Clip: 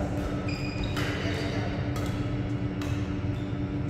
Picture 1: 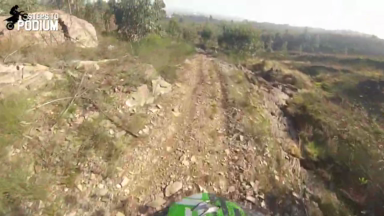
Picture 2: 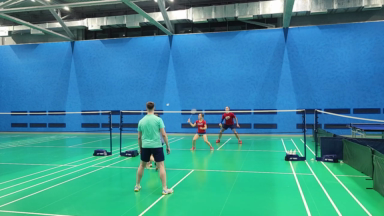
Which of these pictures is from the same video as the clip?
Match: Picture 2